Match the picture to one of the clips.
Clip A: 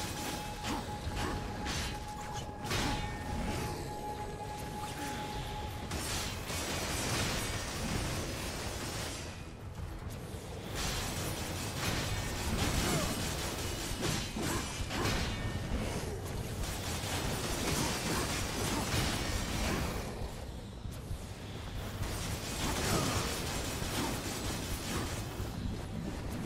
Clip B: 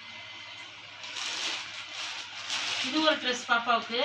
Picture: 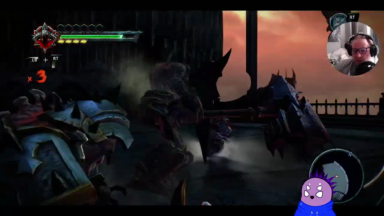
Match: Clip A